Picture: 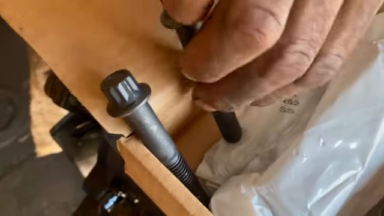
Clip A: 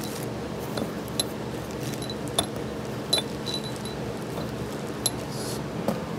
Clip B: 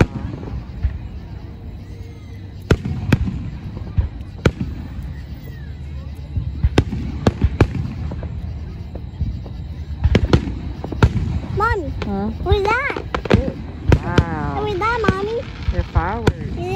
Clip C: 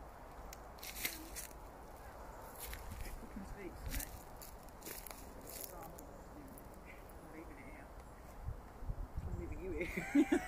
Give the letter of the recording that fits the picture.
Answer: A